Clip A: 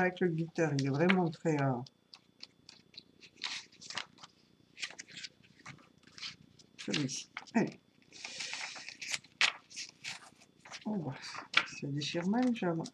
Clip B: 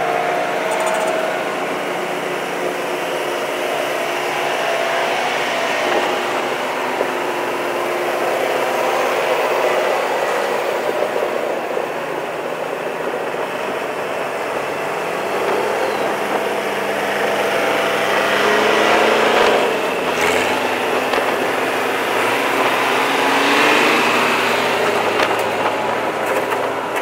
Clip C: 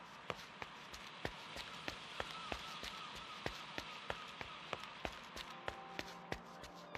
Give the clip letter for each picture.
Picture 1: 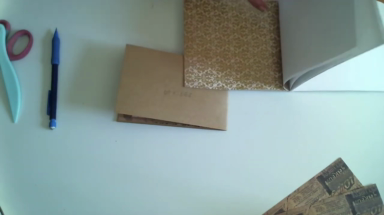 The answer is A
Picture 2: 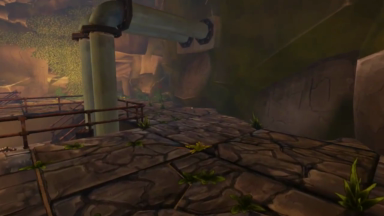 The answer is C